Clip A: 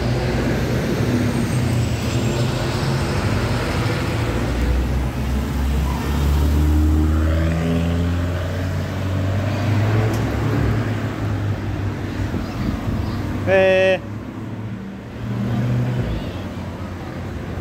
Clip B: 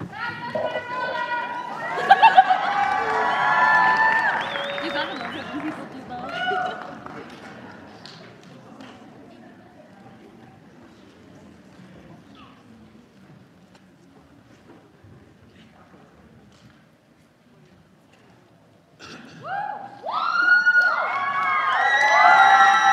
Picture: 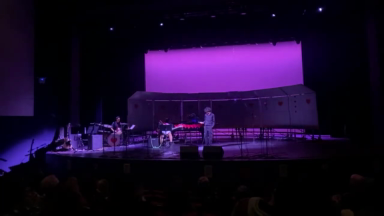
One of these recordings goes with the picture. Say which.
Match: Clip B